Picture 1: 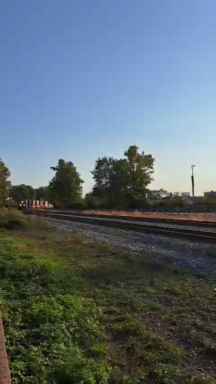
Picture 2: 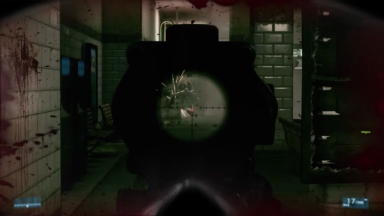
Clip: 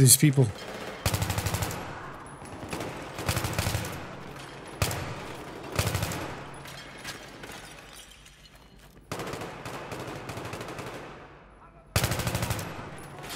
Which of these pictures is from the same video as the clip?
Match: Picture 2